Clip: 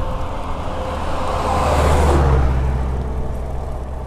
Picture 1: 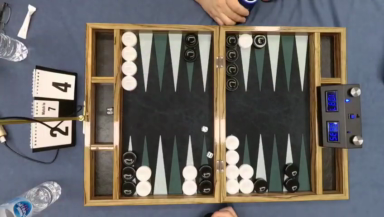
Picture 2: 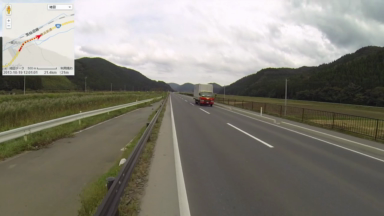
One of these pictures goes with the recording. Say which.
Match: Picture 2